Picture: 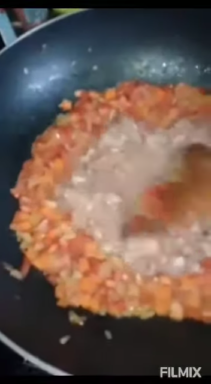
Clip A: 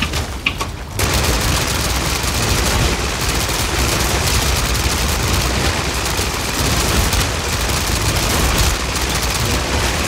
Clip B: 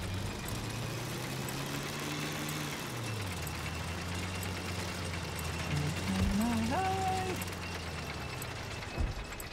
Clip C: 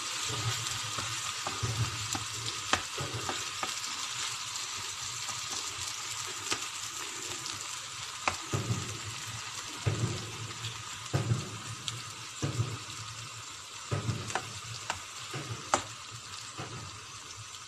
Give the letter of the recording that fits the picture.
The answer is C